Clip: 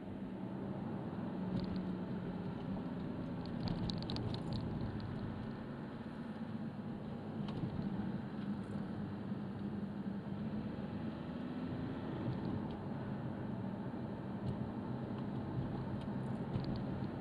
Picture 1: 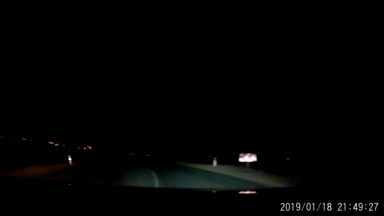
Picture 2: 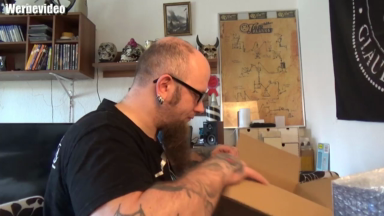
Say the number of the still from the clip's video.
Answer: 1